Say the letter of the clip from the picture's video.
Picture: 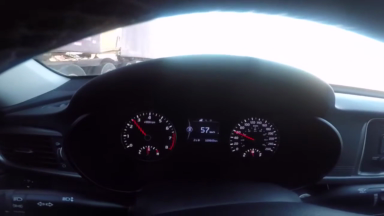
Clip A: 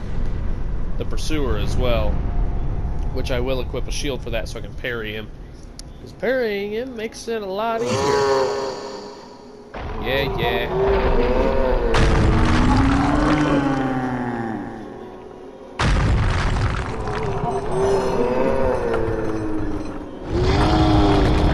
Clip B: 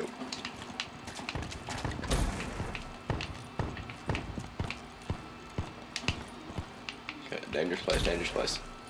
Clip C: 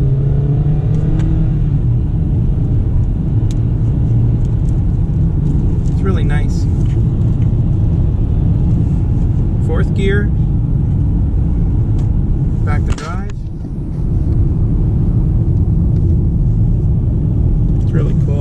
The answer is C